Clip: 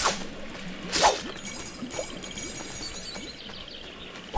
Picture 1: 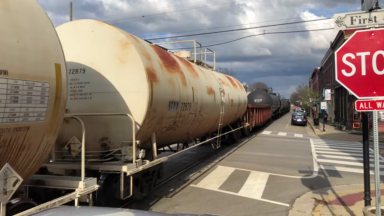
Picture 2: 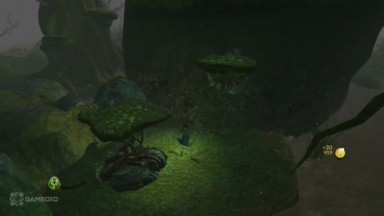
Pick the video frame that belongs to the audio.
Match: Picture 2